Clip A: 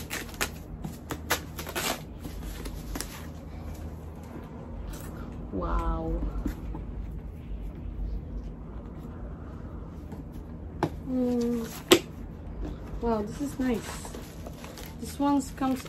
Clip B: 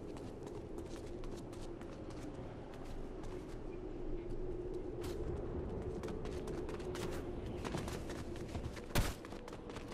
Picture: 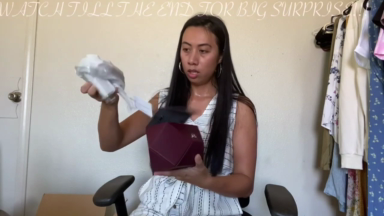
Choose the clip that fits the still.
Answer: A